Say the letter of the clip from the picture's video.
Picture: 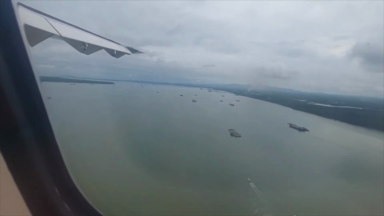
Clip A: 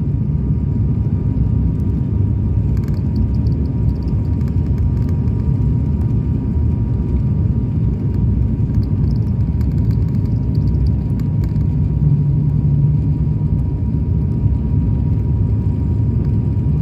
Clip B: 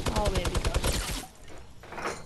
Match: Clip A